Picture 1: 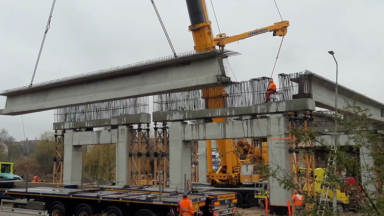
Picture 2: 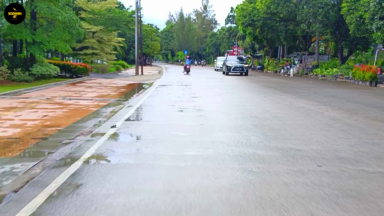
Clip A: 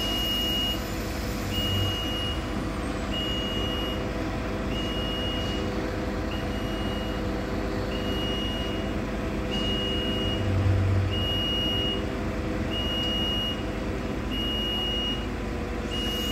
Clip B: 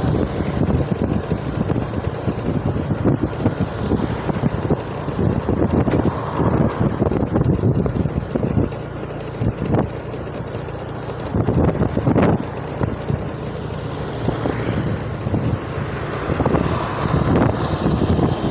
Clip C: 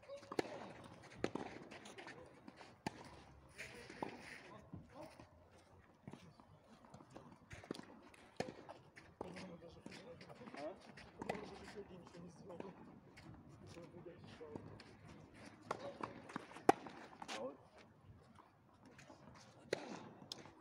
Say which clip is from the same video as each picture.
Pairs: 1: A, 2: B